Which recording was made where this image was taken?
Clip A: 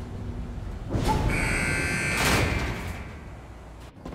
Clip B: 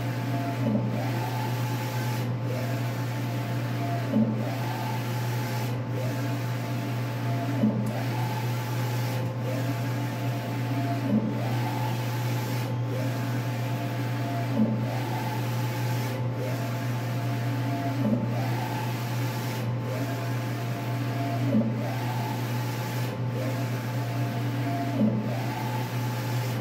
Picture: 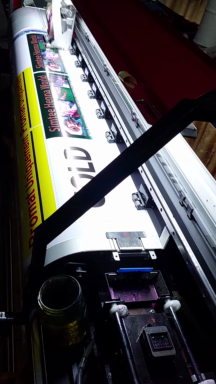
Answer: B